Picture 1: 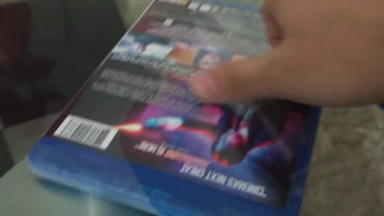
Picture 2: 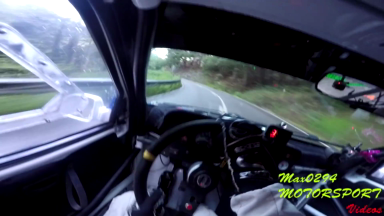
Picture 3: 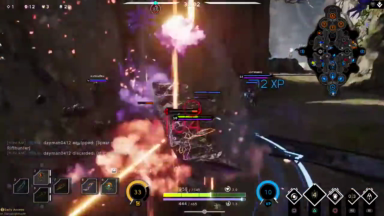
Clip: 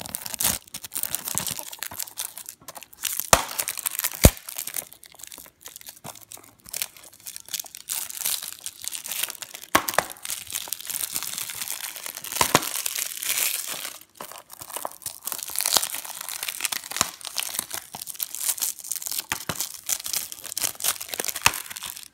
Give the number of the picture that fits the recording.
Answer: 1